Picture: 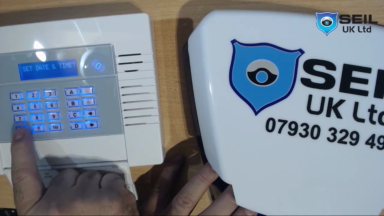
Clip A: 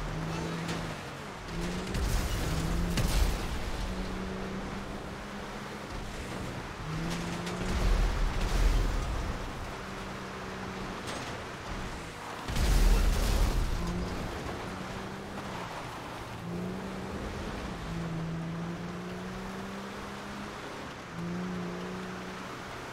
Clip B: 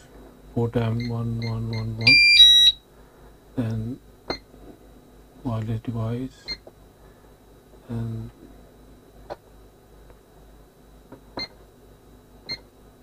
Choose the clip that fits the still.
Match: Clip B